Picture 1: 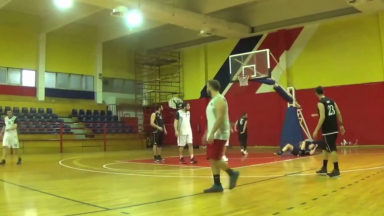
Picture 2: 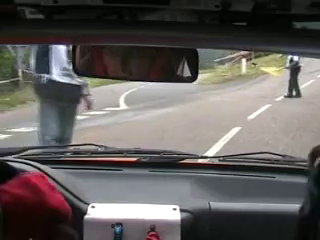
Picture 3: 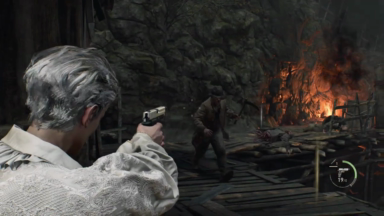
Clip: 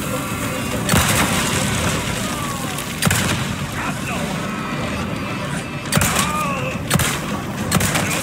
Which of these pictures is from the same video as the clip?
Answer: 3